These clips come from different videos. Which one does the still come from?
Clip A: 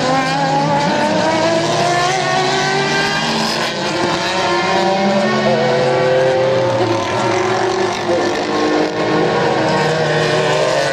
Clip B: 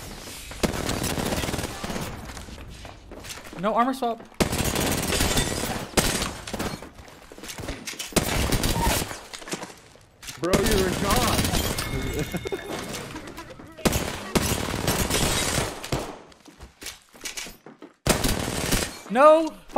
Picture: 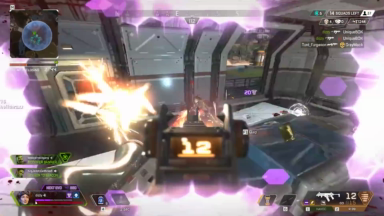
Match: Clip B